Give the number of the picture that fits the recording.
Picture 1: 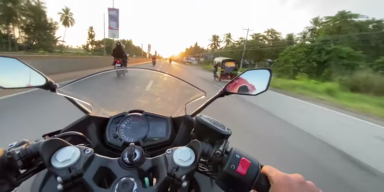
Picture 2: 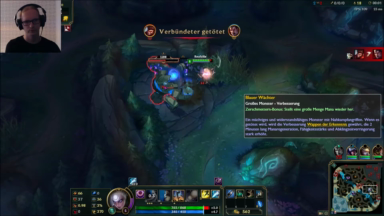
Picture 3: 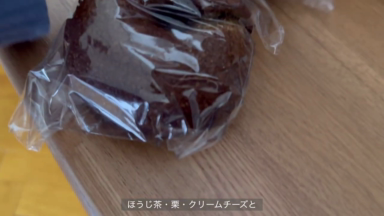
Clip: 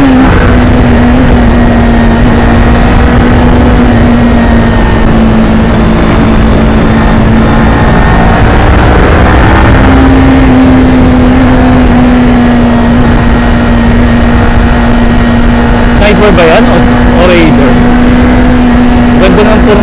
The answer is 1